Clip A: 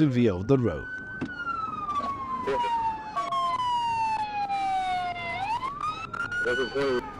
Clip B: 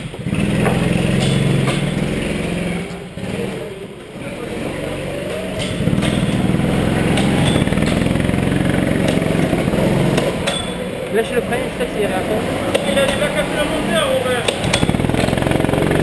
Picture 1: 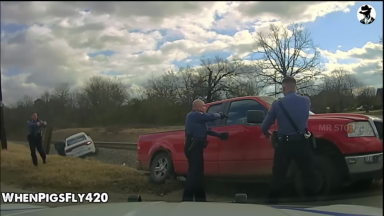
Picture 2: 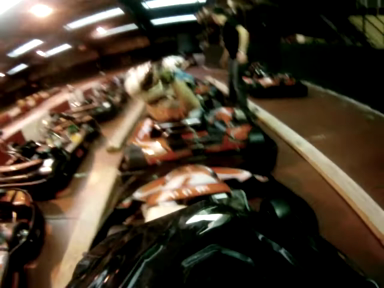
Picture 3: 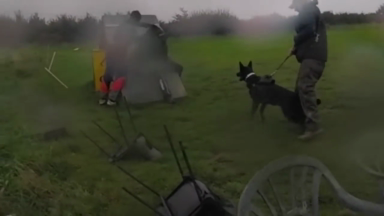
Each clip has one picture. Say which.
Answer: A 1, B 2